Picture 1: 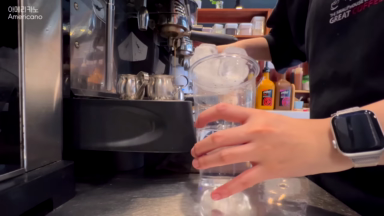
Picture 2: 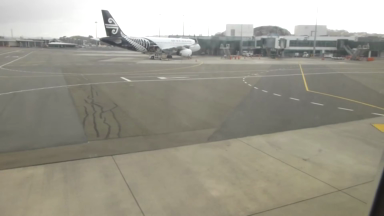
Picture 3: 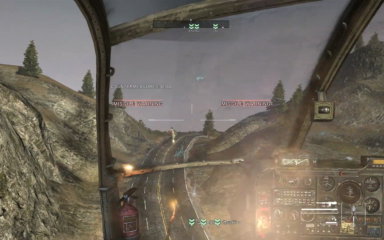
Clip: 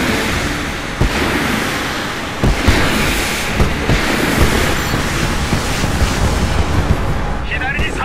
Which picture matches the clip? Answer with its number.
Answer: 3